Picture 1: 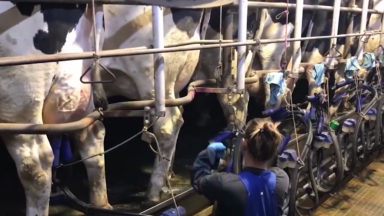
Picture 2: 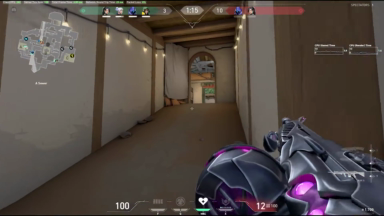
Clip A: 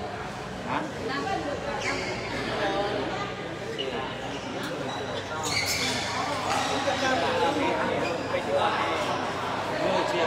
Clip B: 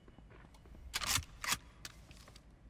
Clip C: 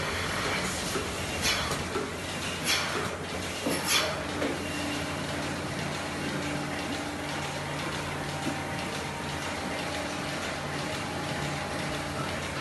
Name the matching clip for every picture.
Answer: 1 C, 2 B